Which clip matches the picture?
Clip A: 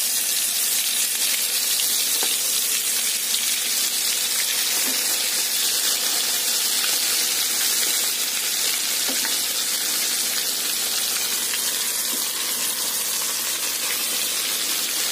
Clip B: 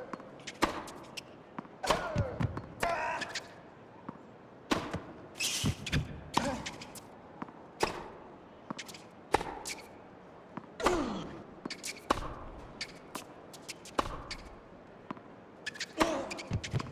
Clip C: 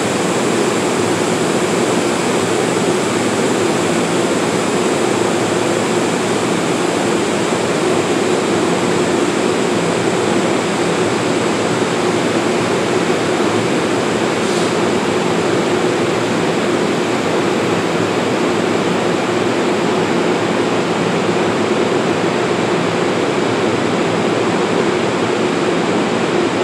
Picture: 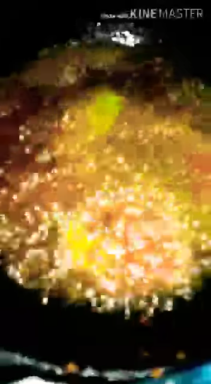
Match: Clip A